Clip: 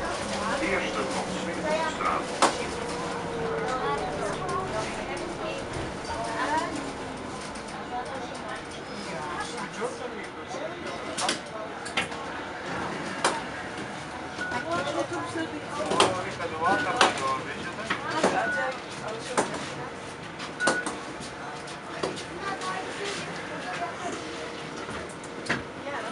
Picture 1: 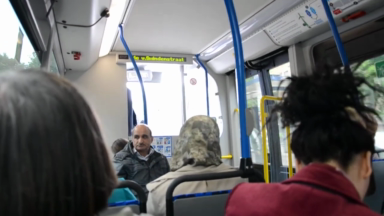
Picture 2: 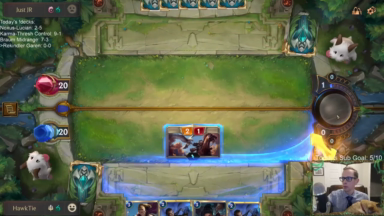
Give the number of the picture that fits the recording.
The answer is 1